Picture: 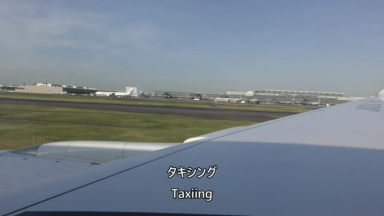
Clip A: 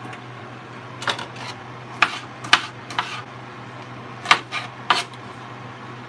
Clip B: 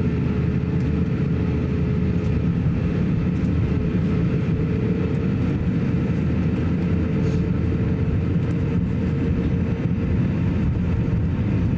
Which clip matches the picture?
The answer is B